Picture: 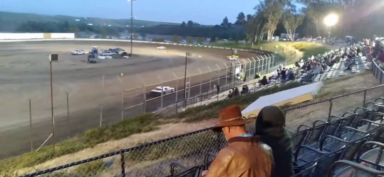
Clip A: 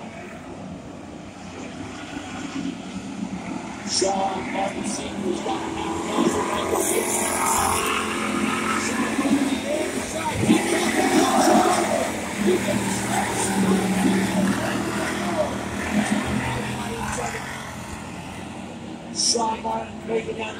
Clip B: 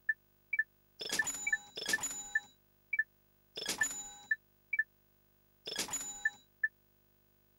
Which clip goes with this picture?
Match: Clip A